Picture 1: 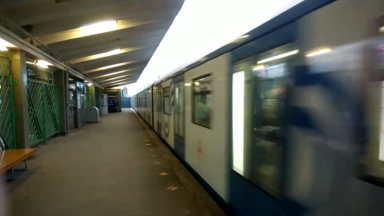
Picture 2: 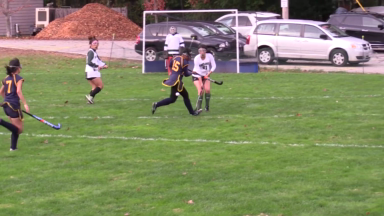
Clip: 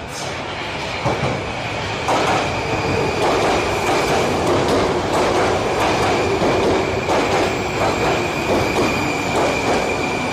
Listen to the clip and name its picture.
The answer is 1